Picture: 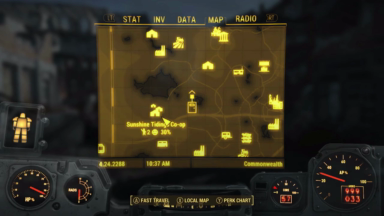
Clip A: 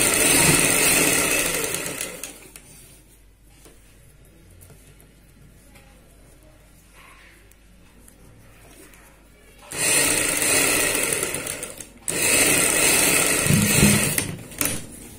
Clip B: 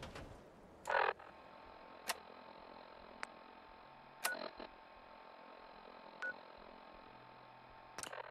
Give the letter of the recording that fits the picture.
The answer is B